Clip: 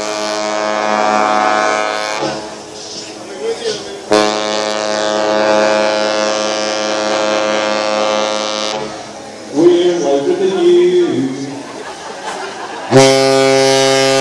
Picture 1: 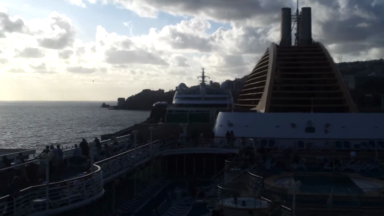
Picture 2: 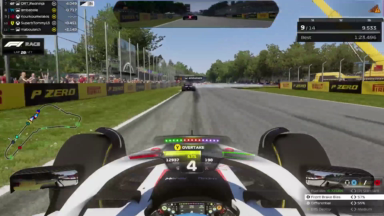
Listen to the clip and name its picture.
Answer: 1